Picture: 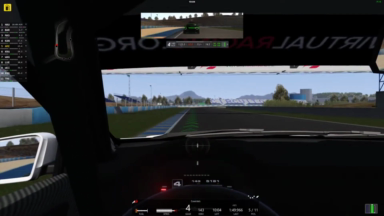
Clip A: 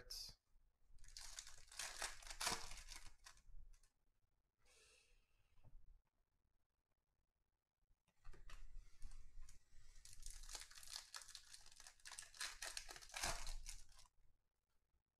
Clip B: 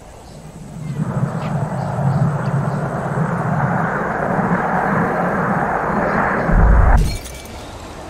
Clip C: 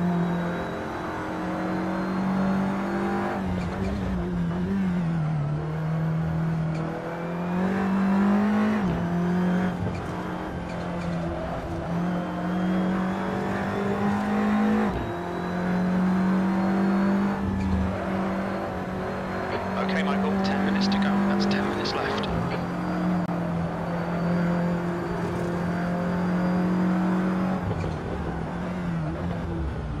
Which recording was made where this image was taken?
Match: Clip C